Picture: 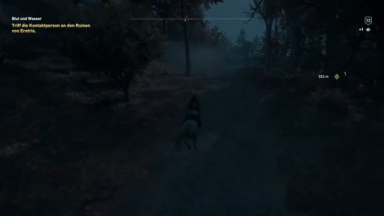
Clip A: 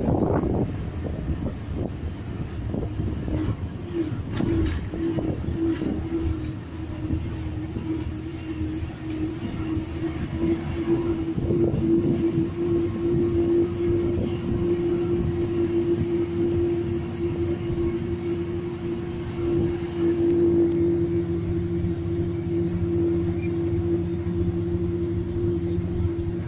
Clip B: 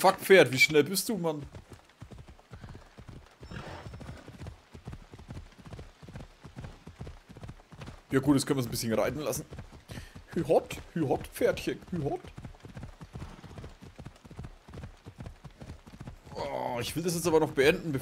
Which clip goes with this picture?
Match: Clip B